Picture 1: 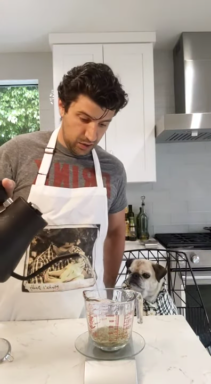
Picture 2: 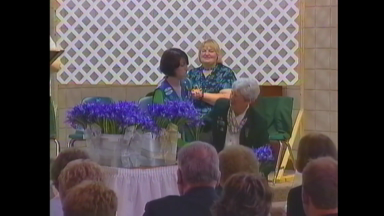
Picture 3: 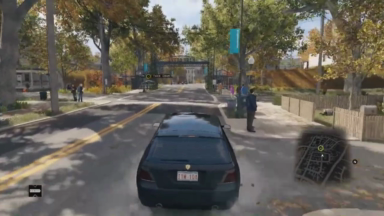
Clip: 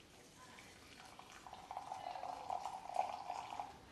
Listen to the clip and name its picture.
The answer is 1